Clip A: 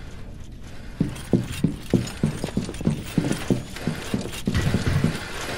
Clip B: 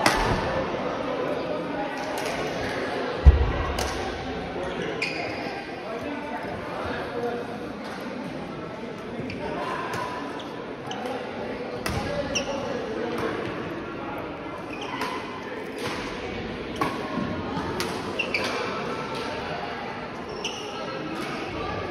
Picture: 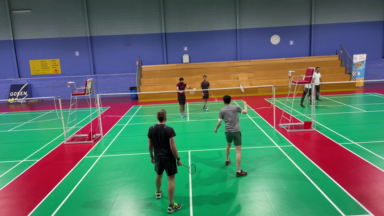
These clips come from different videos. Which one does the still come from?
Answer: B